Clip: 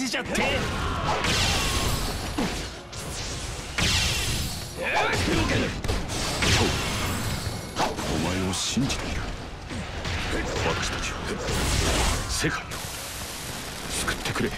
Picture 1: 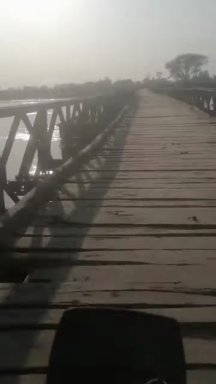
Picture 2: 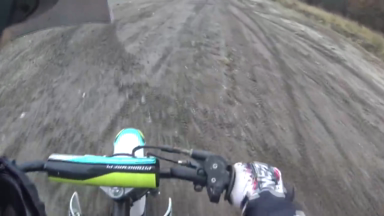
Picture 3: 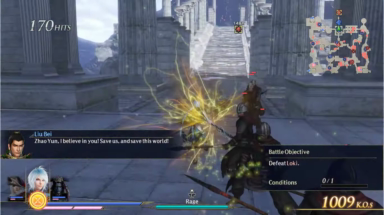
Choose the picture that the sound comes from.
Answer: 3